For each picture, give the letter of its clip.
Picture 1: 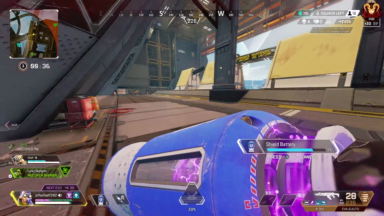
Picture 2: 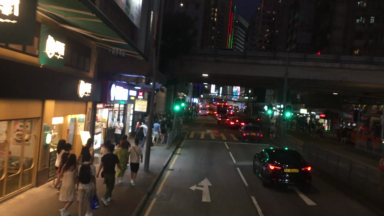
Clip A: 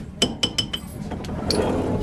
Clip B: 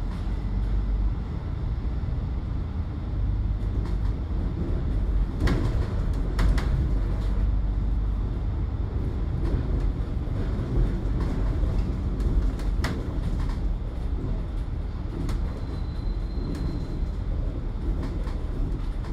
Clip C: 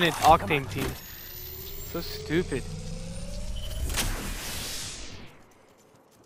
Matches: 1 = C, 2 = B